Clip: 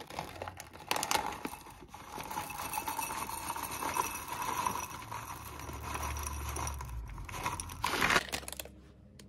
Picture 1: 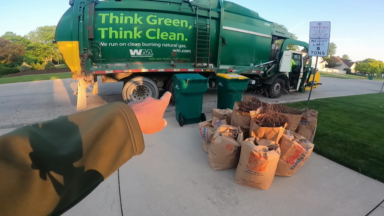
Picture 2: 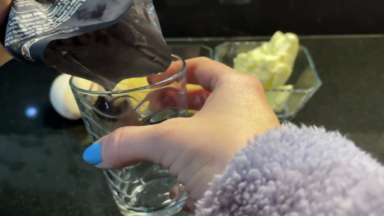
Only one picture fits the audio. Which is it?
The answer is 2